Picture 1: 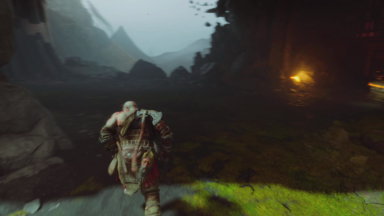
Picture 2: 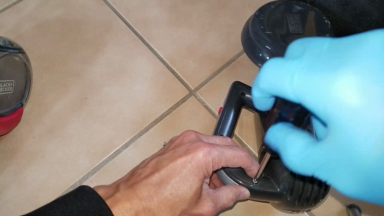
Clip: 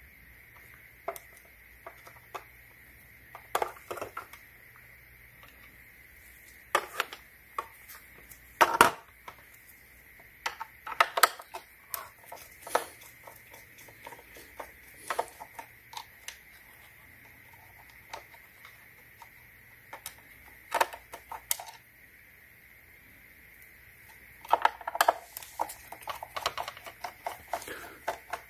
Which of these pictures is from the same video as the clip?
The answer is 2